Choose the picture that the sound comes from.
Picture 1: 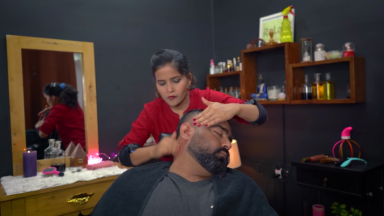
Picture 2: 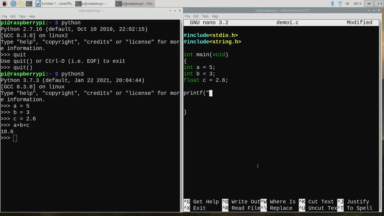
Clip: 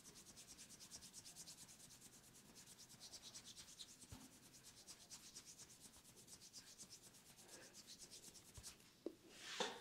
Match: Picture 1